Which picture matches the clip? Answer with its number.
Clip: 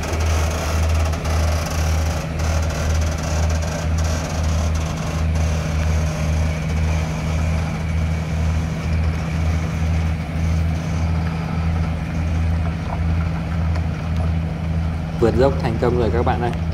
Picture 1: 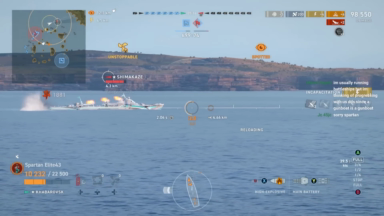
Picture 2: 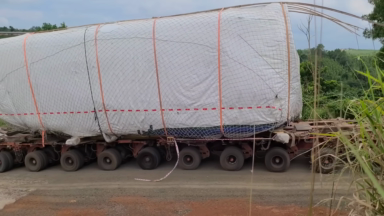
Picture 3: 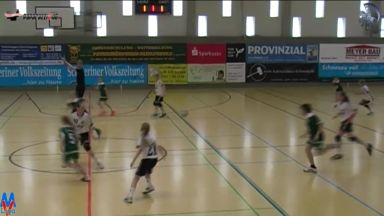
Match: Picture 2